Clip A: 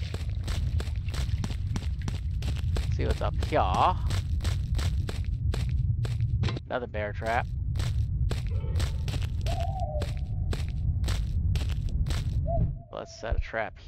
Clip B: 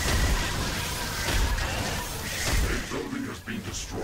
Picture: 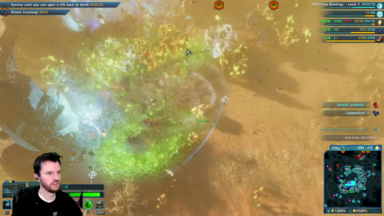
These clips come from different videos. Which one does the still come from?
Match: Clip B